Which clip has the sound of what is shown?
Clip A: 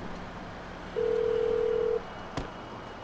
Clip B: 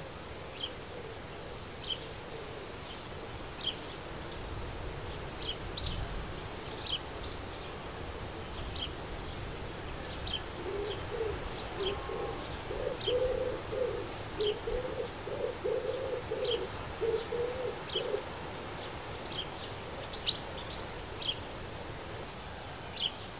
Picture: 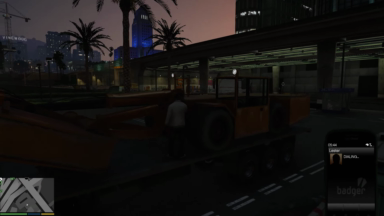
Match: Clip A